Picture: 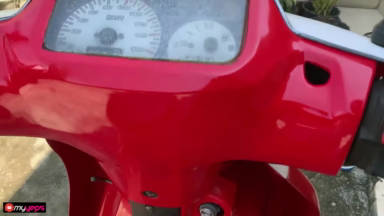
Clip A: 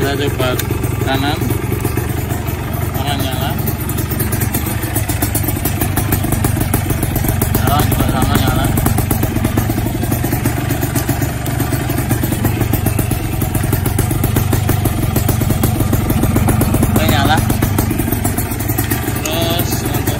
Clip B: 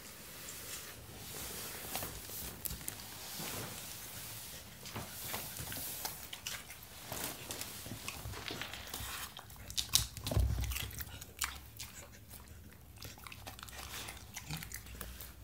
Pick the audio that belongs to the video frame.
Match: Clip A